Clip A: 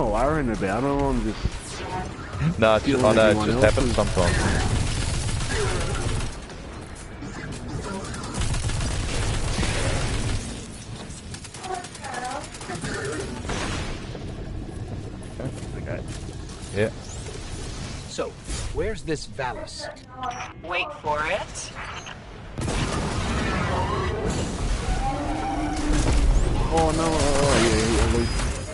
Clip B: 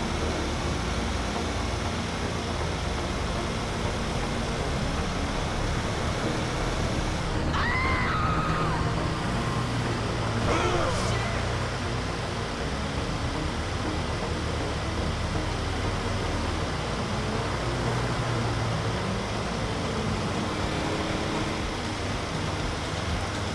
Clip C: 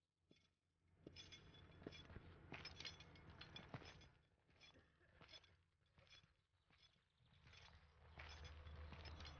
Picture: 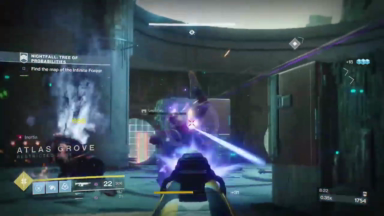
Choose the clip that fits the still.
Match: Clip A